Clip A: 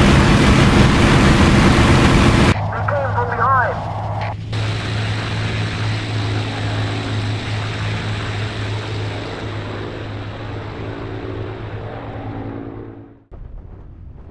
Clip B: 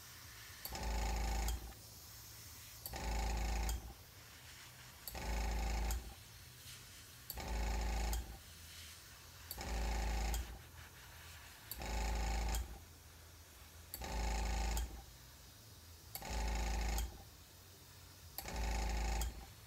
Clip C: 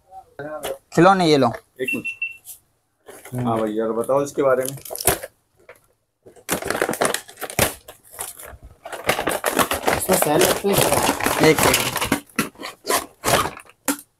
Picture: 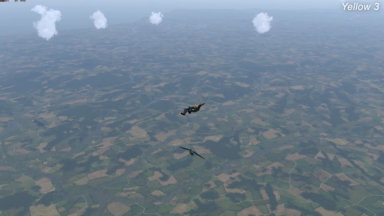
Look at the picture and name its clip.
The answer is A